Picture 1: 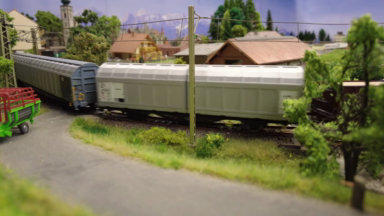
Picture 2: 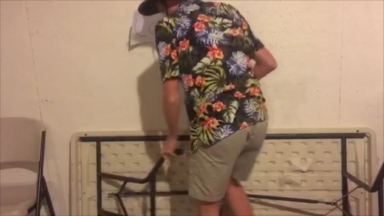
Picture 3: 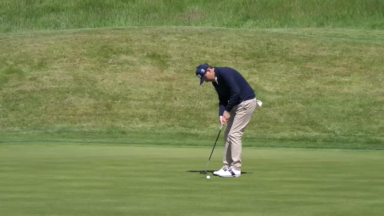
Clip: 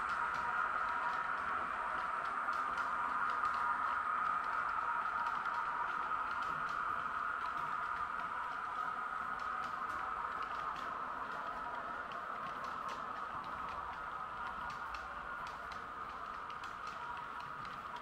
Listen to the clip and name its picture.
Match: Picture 1